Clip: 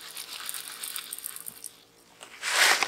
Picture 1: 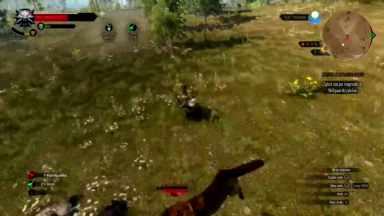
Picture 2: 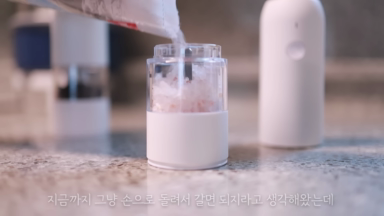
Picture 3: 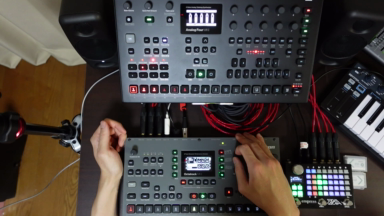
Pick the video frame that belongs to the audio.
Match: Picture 2